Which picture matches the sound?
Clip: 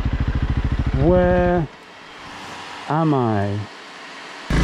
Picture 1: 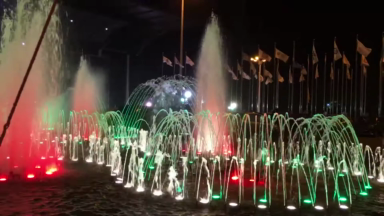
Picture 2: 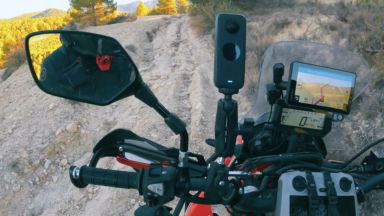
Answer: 2